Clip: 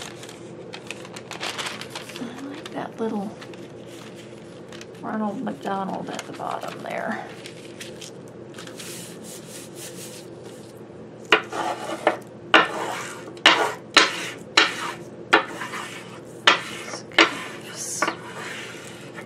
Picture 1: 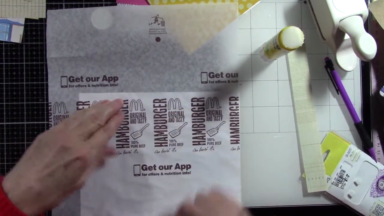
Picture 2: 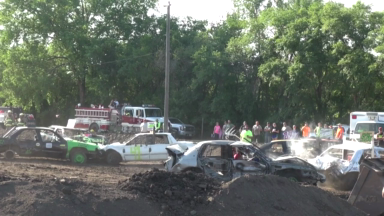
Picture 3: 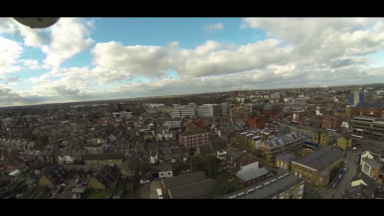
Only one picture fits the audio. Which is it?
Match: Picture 1